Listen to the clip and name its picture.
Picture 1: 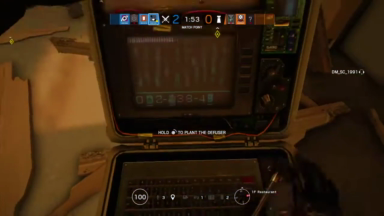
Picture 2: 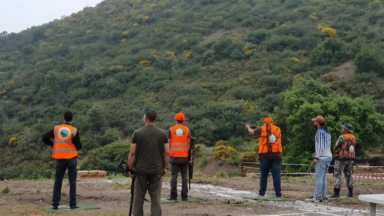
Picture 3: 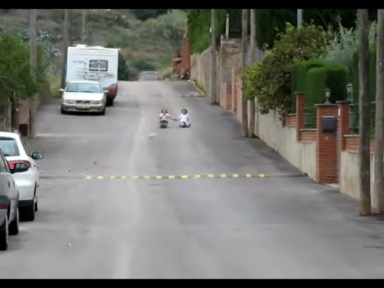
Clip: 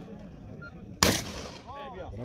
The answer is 2